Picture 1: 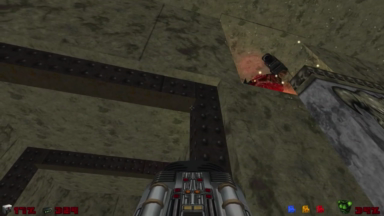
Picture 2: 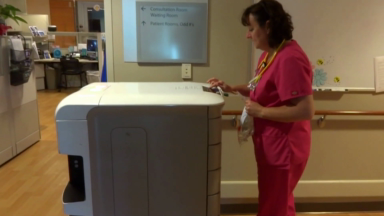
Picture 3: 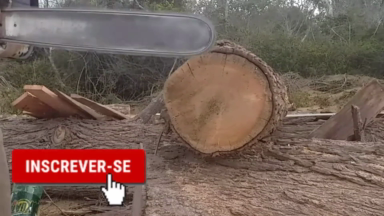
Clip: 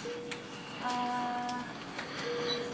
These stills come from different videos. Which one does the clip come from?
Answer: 2